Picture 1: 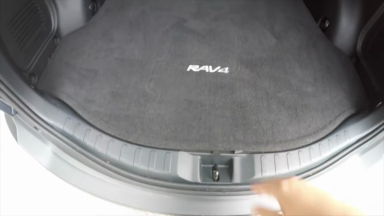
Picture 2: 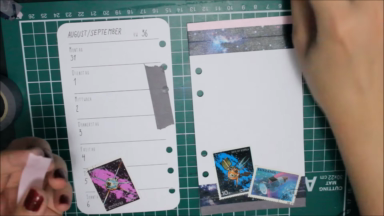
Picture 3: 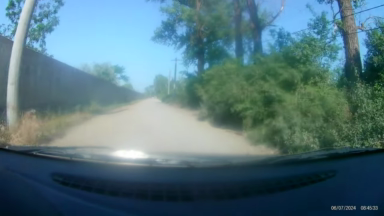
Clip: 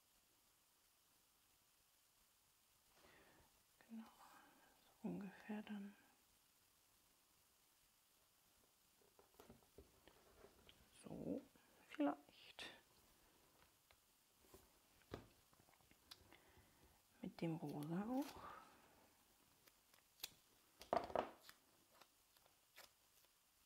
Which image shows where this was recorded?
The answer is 2